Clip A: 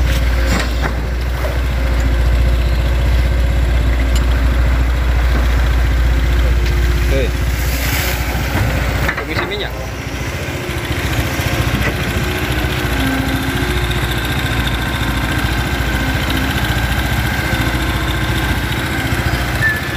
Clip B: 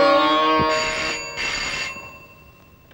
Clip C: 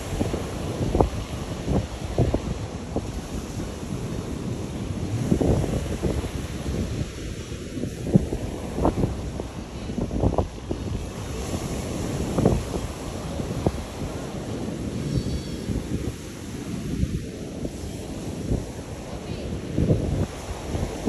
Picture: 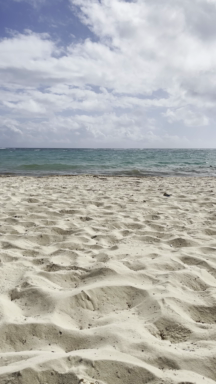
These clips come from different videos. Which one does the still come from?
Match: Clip C